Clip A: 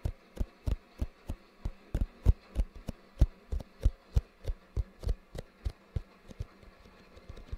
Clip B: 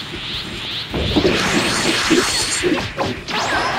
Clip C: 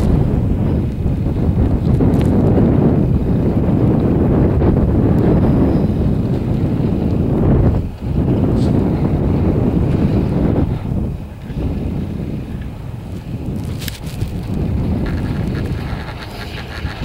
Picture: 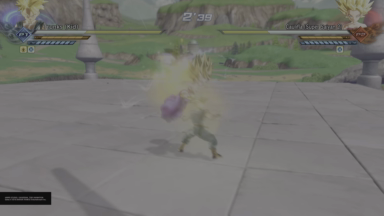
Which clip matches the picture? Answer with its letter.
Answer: B